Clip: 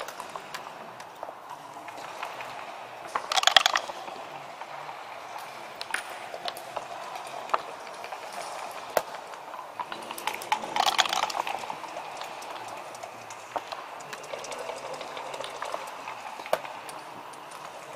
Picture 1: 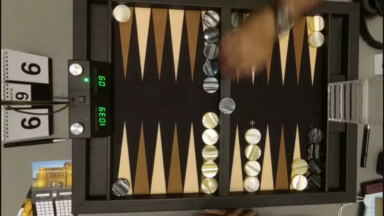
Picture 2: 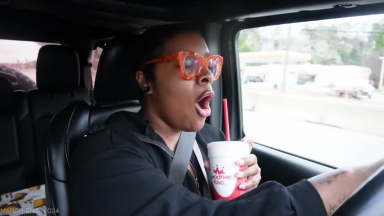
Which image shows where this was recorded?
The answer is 1